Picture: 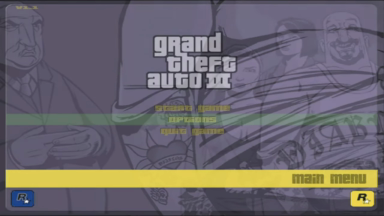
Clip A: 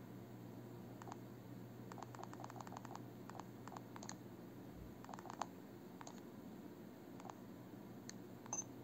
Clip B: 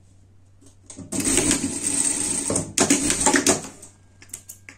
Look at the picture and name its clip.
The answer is A